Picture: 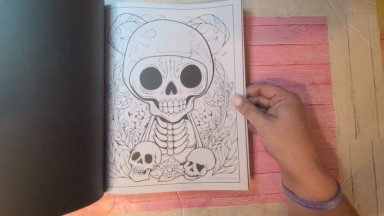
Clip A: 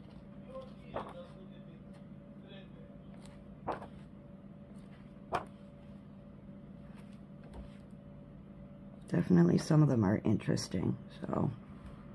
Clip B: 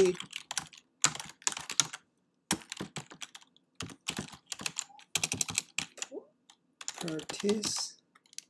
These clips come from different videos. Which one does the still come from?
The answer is A